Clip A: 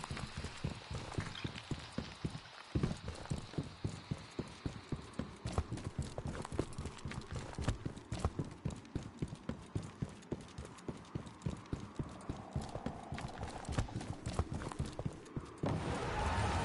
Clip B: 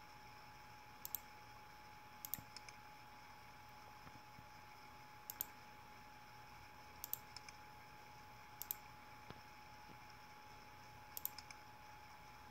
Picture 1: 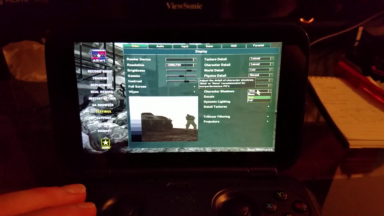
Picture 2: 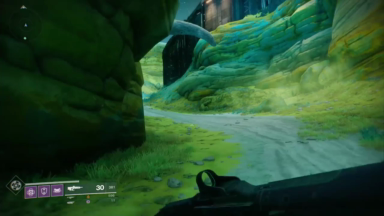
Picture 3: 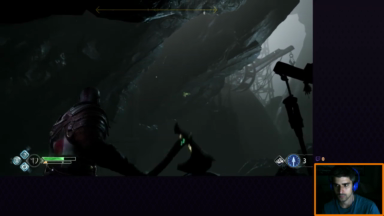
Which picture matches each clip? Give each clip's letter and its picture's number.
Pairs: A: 2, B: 1